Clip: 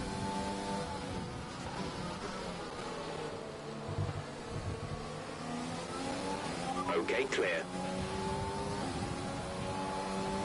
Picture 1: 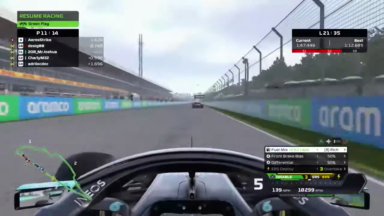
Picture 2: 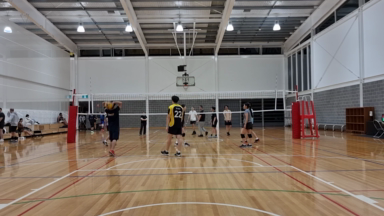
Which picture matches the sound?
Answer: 1